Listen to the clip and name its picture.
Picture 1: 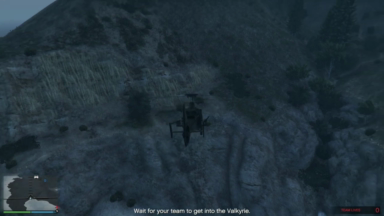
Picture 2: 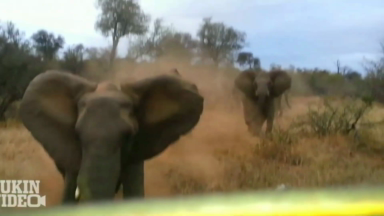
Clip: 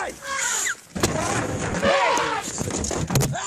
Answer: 2